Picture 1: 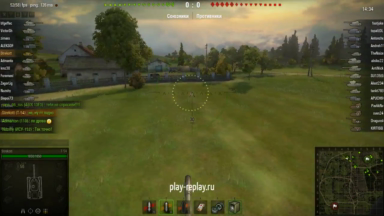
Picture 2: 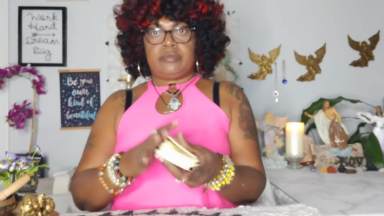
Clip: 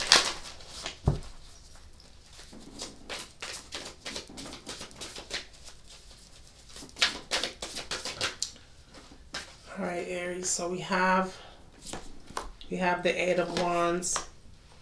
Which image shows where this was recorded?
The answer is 2